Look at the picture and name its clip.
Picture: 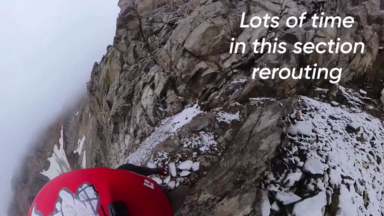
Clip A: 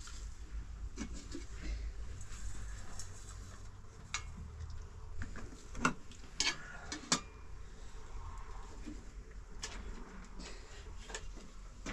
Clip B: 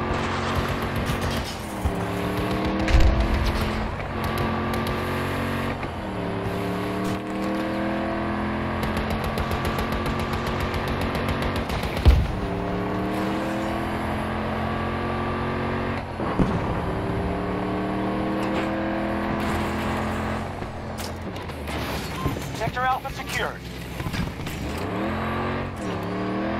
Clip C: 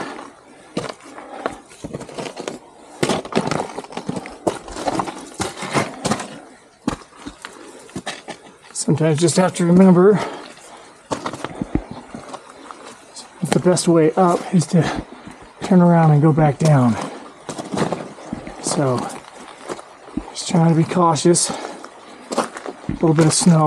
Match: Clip C